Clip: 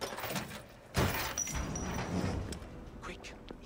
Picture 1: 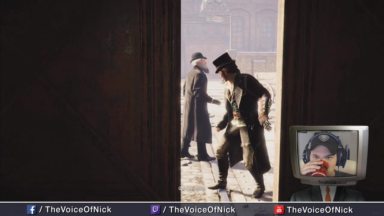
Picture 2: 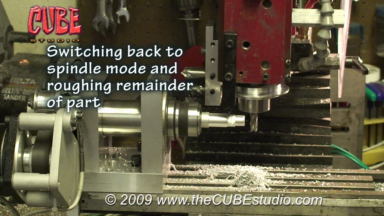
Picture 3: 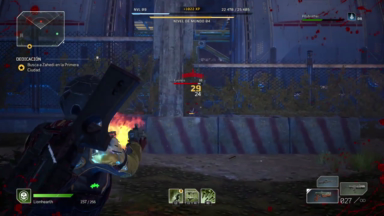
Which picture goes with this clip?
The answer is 1